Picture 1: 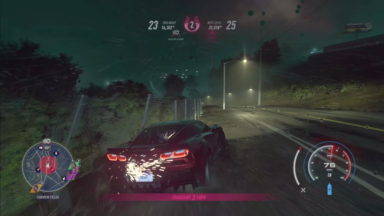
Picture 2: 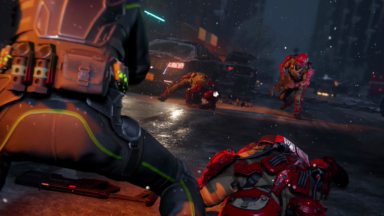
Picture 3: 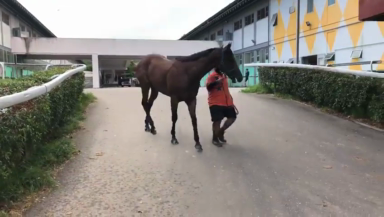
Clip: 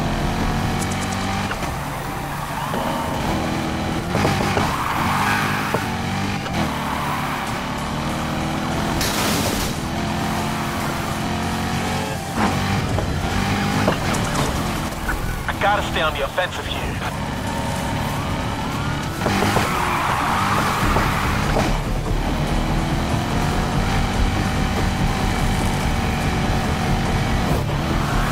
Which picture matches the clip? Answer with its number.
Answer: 1